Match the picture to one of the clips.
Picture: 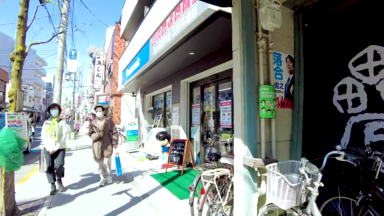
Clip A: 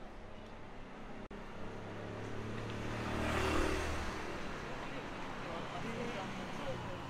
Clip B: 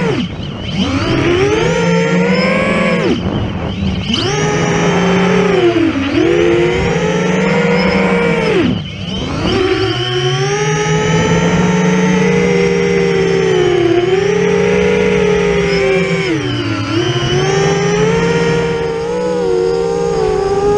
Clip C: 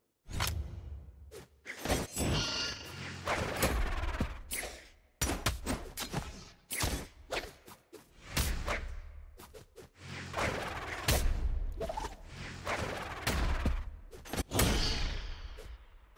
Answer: A